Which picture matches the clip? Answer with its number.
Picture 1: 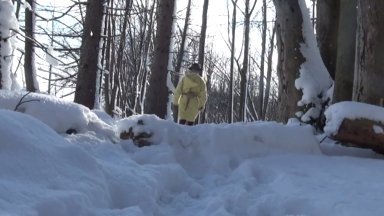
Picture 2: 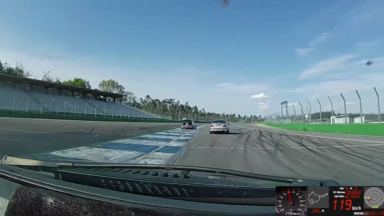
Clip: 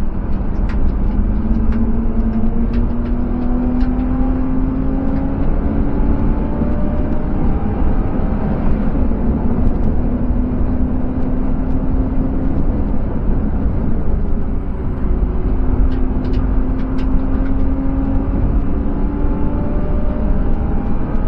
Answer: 2